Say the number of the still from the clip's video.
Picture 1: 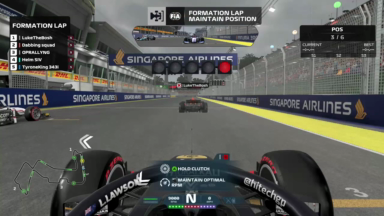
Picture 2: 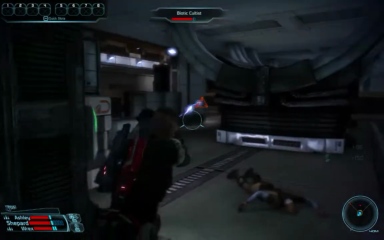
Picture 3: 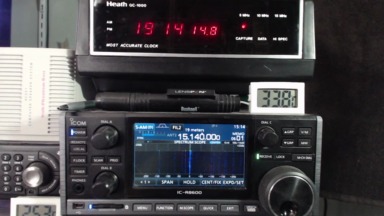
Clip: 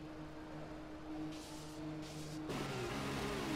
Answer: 1